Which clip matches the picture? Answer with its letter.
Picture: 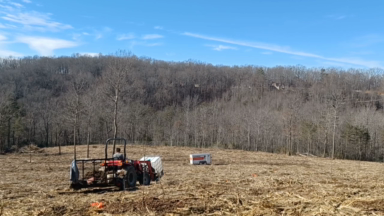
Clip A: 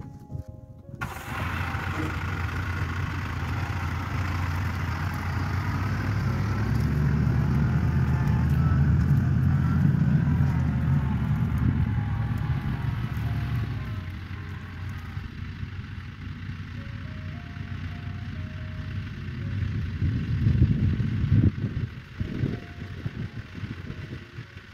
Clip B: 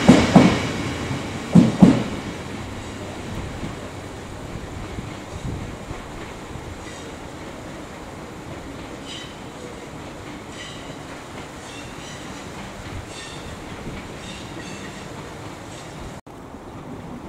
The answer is A